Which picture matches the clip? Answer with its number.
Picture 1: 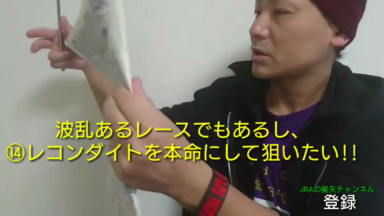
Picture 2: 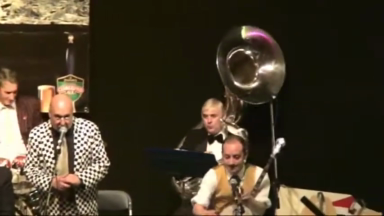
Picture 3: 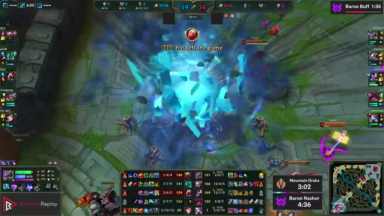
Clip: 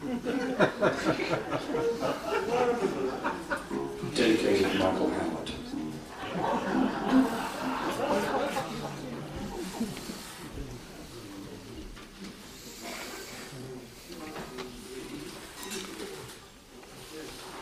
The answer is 2